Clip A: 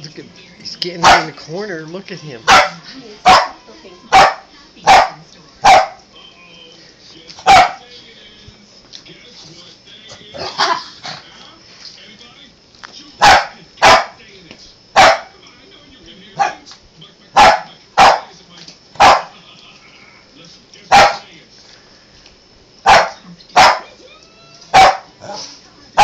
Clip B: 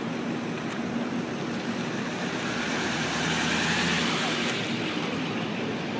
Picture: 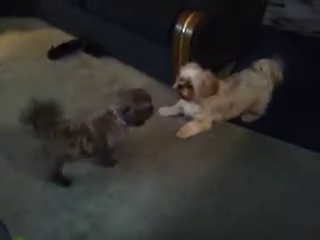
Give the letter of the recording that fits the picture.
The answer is A